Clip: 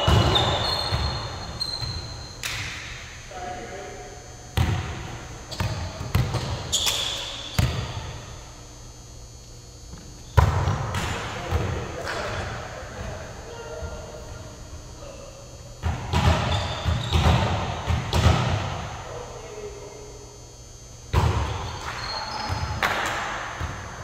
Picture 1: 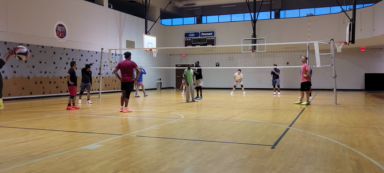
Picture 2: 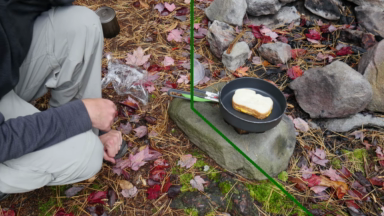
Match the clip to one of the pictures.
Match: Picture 1